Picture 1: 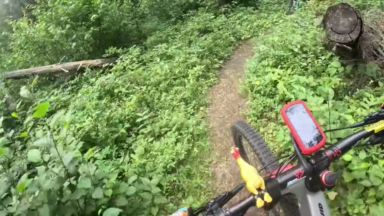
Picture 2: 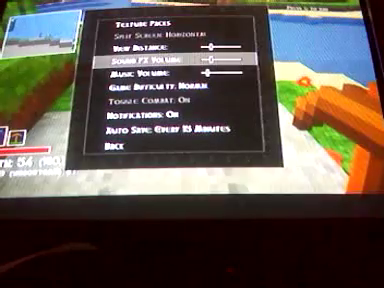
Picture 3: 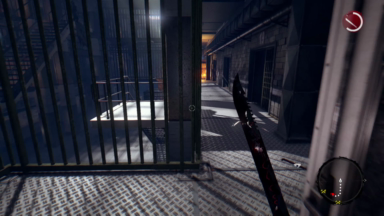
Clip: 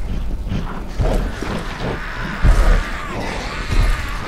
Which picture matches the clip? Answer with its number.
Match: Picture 3